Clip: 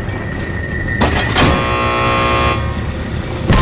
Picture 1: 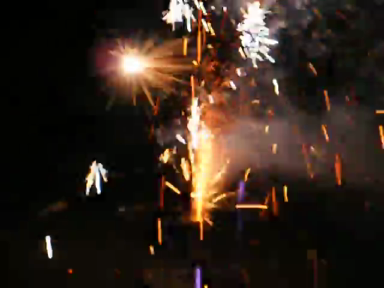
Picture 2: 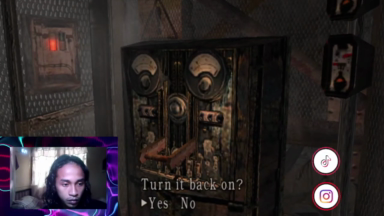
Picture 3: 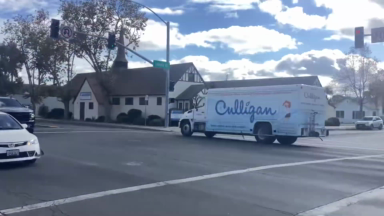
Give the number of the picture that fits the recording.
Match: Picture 2